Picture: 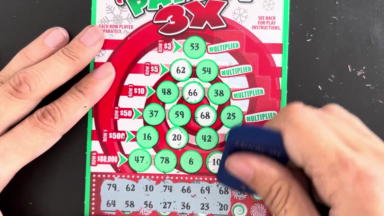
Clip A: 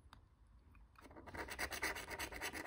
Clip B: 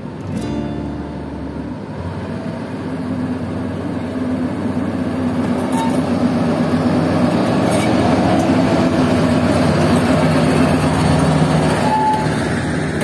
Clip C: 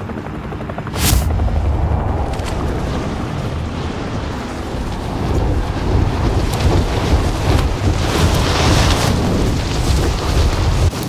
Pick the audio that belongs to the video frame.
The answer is A